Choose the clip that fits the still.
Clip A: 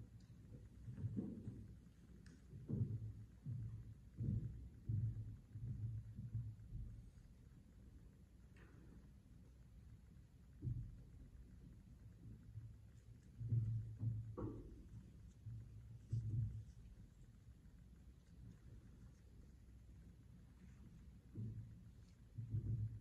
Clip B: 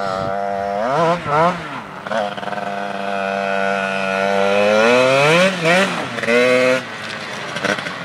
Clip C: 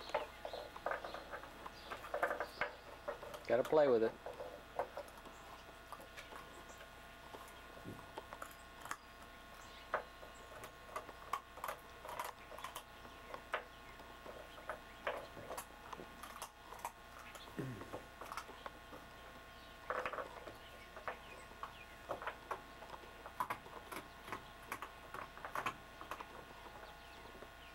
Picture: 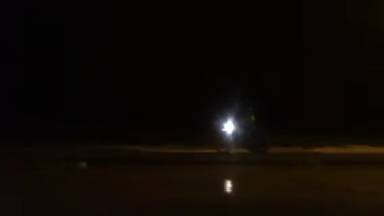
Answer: B